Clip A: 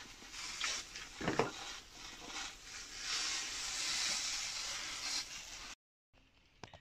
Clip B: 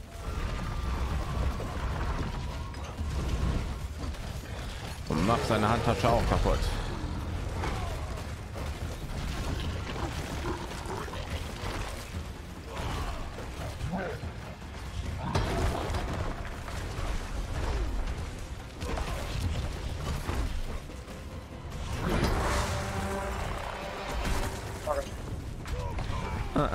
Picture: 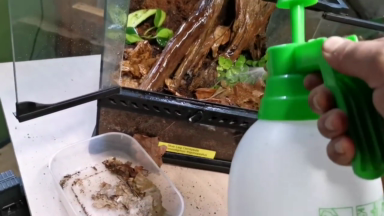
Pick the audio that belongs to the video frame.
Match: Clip A